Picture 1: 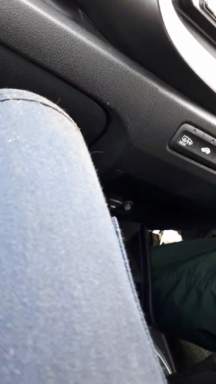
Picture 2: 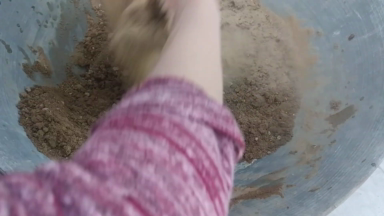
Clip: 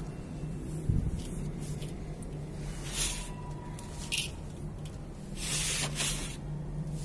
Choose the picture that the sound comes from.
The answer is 2